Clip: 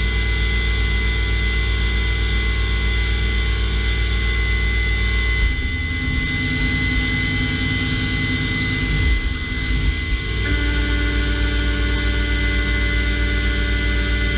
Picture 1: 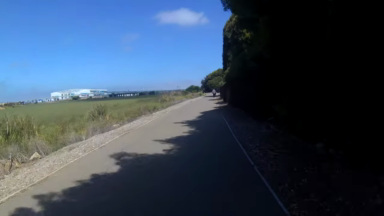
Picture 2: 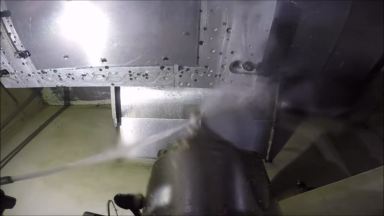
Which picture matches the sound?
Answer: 2